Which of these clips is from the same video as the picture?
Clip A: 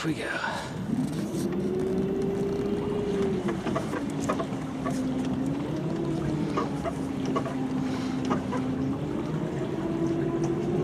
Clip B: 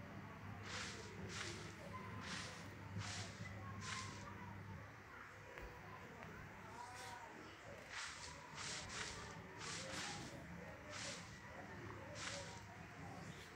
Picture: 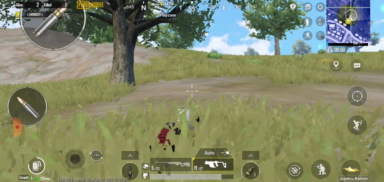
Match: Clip B